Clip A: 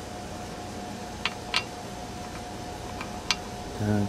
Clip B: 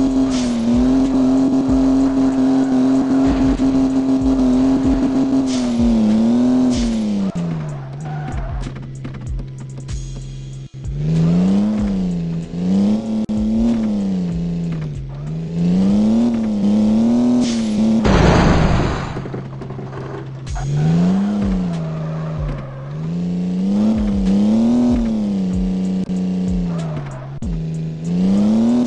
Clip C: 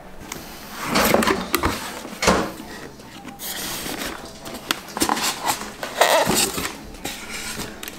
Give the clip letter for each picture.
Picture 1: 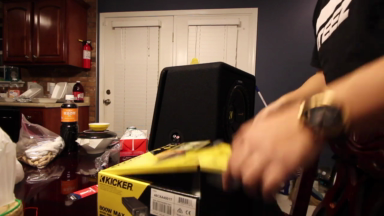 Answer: C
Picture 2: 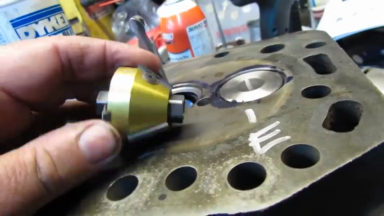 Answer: A